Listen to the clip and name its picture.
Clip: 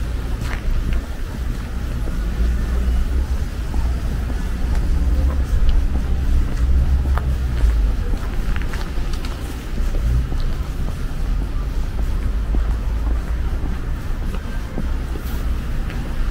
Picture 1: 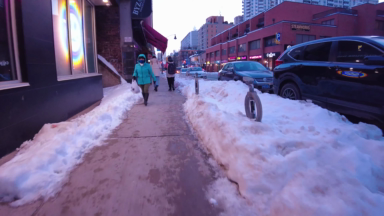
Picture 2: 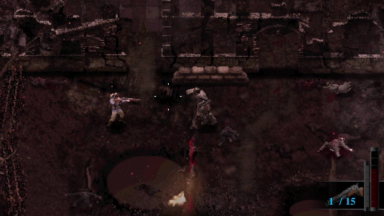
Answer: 1